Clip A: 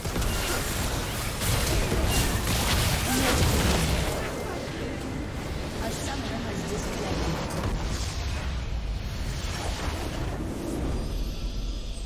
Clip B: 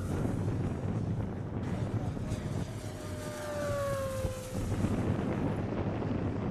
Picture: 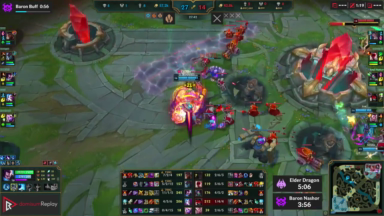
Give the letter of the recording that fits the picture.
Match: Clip A